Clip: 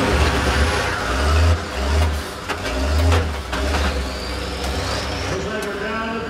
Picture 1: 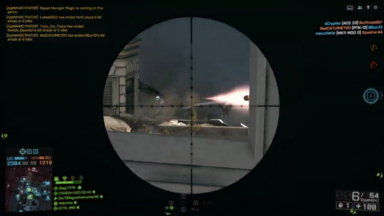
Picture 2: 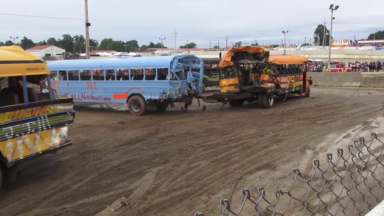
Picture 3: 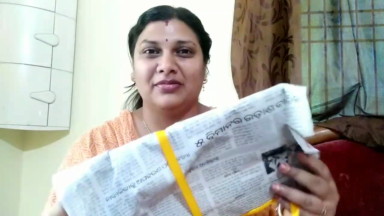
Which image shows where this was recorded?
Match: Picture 2